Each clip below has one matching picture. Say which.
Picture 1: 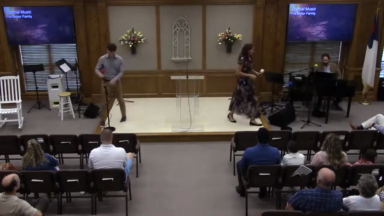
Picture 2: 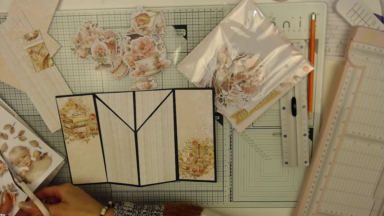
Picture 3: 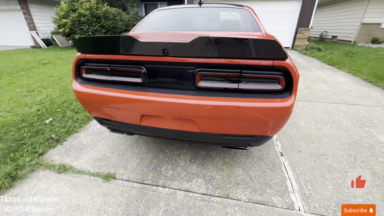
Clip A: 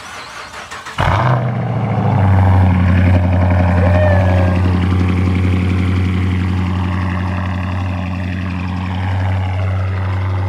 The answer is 3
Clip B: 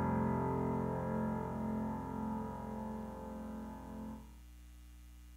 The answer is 1